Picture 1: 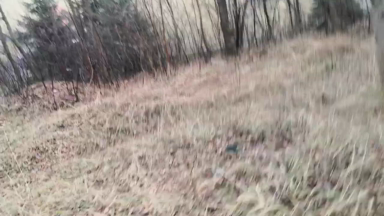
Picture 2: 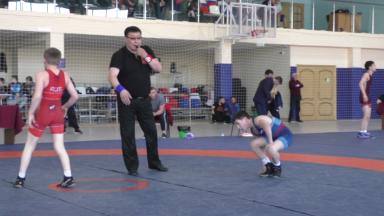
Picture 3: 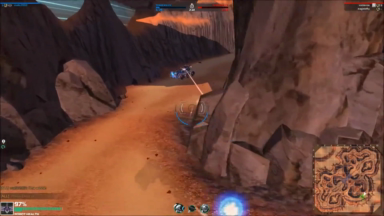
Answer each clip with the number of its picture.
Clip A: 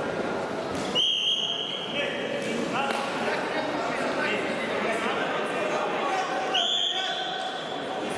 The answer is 2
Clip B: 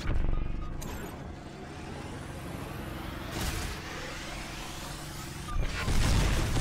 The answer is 3